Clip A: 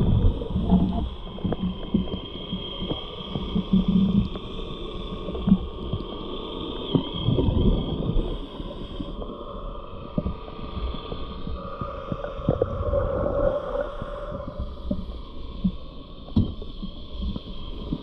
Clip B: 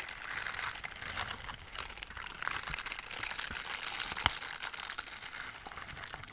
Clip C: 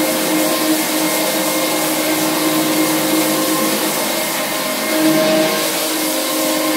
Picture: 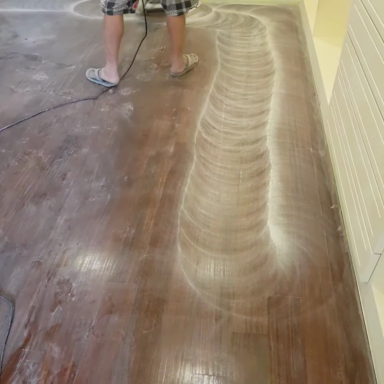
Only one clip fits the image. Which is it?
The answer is C